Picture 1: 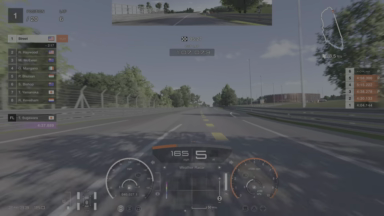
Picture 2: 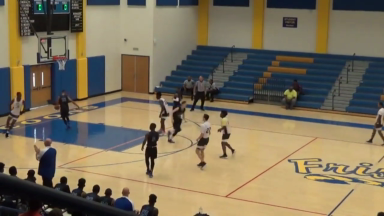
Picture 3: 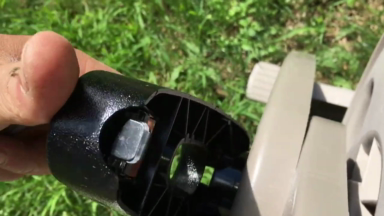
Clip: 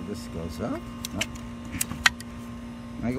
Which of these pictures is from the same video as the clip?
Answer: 3